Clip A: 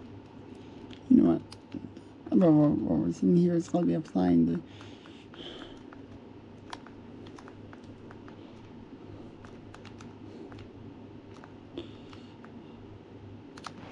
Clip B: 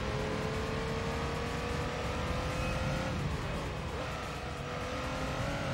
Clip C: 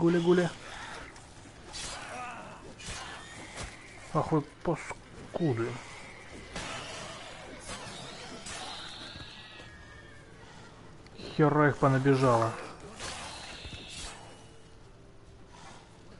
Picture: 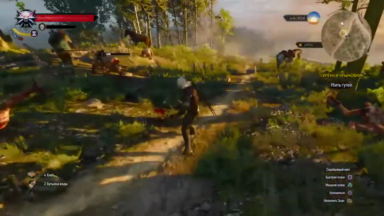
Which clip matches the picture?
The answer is C